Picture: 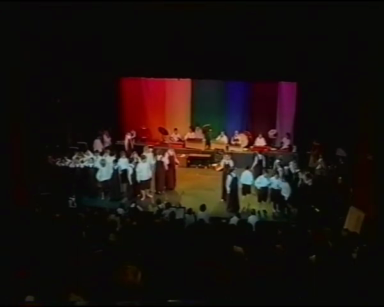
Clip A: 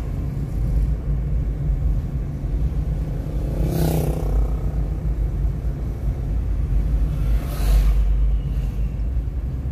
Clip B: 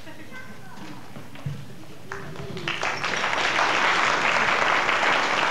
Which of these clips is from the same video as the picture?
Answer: B